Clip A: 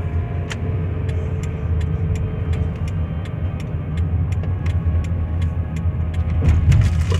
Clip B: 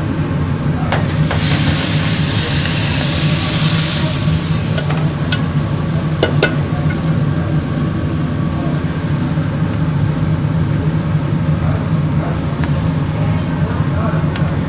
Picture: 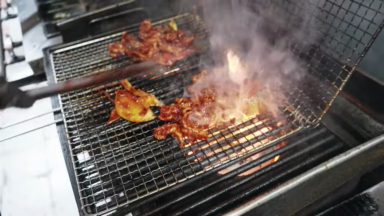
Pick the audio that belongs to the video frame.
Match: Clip B